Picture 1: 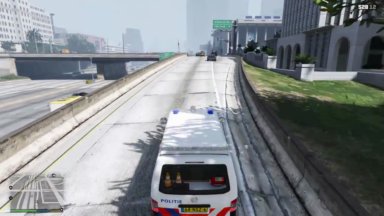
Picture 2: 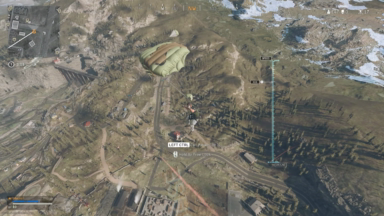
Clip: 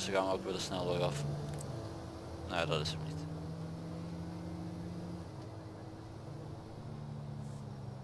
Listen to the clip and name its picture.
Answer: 1